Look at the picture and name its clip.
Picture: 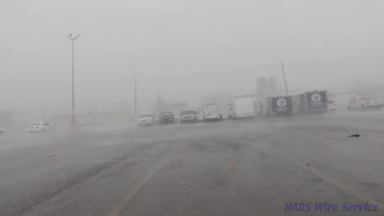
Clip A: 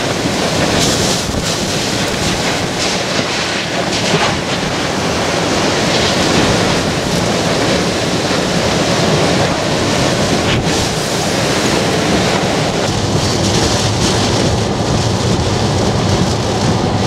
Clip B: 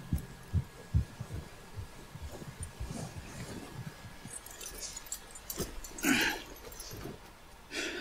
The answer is A